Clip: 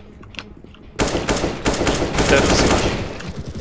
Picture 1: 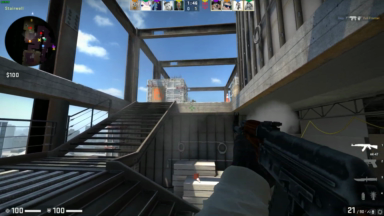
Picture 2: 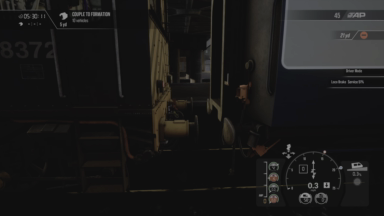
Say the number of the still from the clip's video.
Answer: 1